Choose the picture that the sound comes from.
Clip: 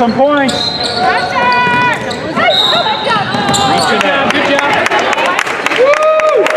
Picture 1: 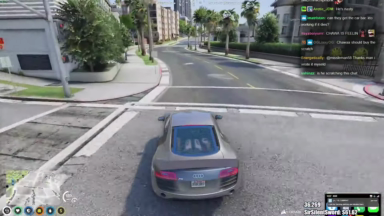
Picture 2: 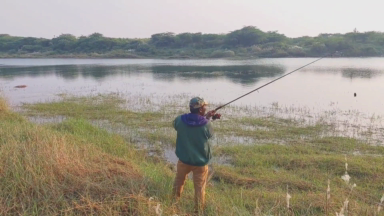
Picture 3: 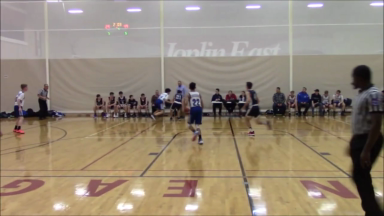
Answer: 3